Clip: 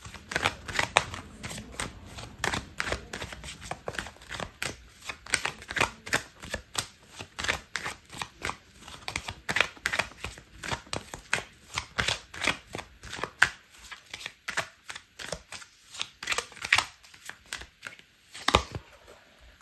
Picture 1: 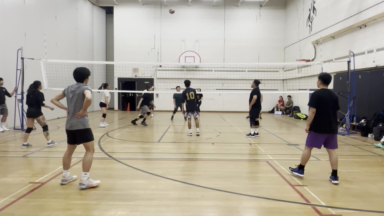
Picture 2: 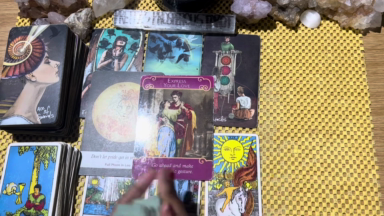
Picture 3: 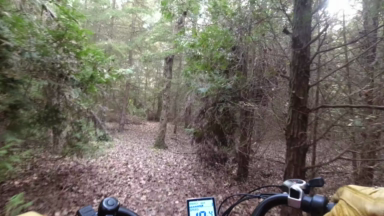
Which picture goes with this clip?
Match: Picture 2